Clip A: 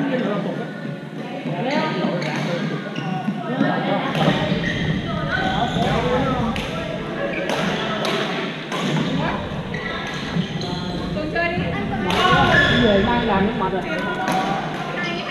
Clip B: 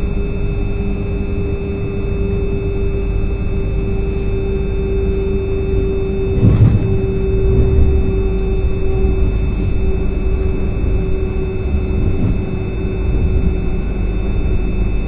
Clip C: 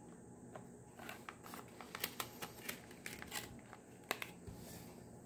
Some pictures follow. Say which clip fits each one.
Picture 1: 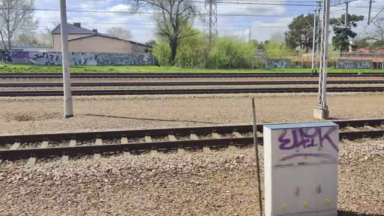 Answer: B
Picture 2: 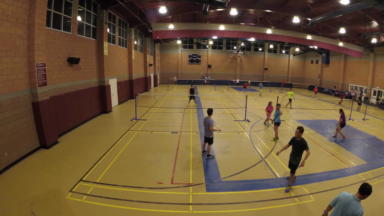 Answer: A